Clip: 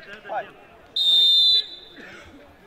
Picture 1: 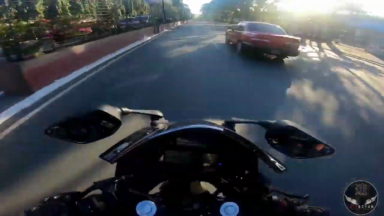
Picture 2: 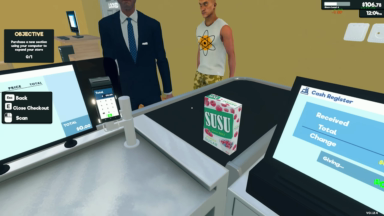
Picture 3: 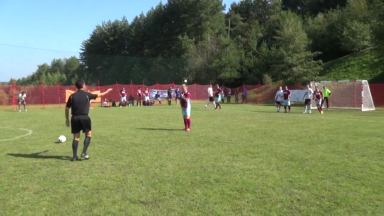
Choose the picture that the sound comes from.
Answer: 3